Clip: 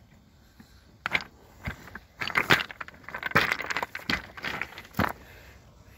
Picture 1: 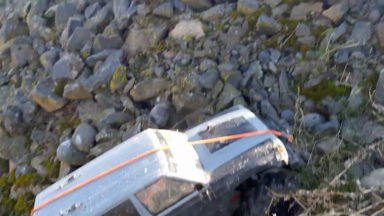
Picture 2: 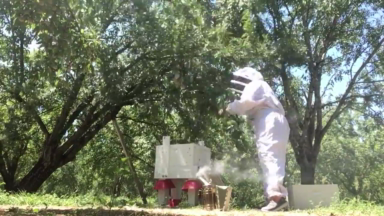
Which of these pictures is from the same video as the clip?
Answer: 1